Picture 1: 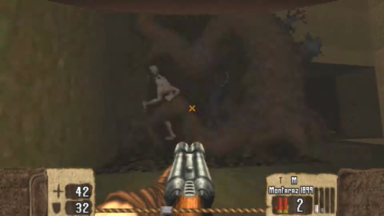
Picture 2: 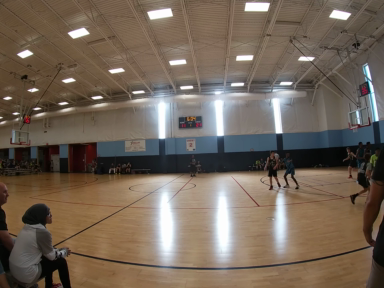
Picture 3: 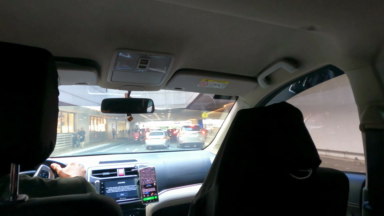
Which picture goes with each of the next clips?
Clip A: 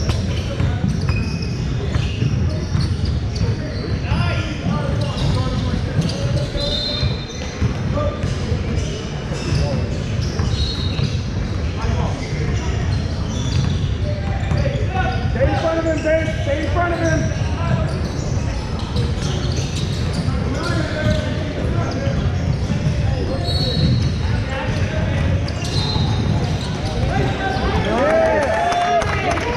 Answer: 2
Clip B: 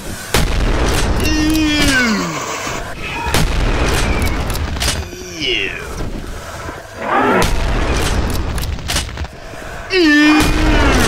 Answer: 1